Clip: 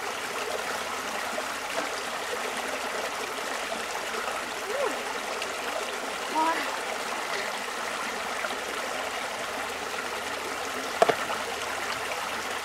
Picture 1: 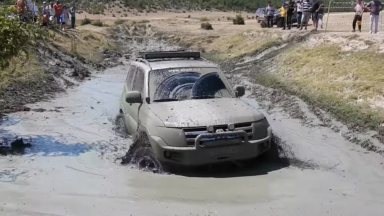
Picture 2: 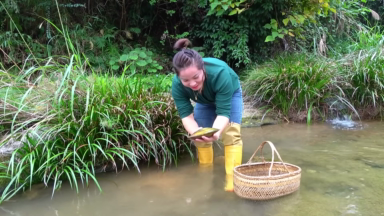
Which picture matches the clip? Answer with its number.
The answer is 2